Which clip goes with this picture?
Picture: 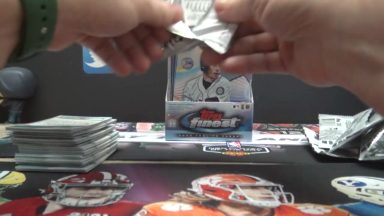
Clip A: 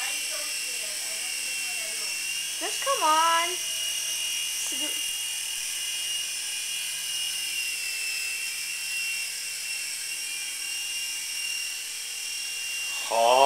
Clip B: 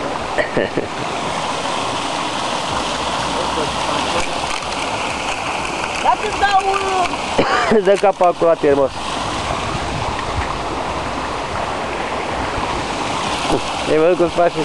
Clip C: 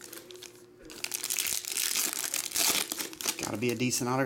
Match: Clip C